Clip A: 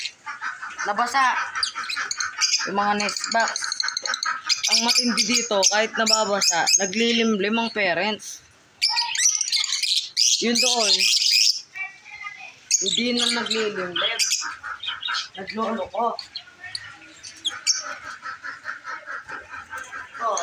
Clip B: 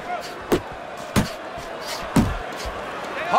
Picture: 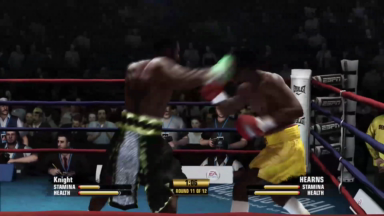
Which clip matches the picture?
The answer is B